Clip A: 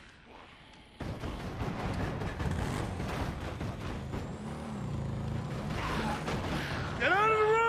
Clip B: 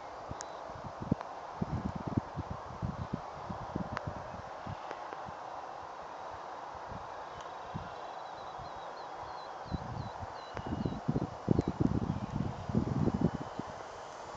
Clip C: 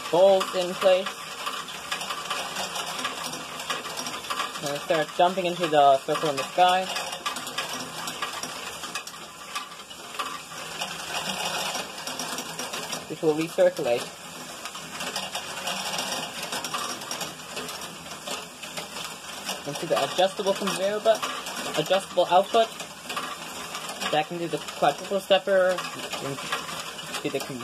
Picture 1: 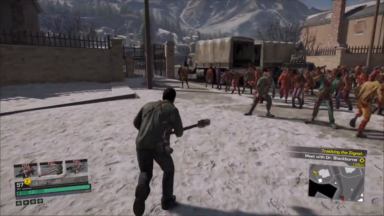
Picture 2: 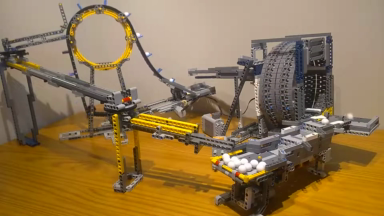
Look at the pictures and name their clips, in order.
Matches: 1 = A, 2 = C